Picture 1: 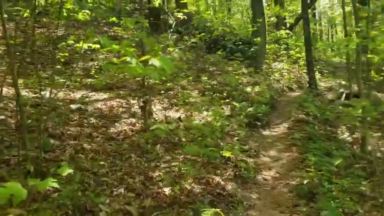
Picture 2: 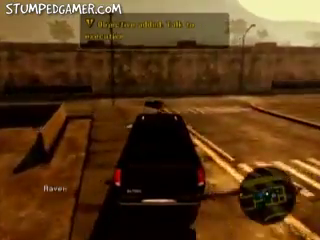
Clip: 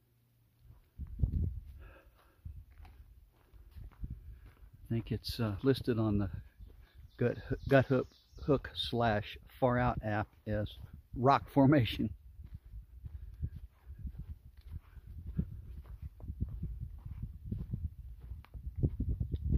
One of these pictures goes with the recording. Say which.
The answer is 1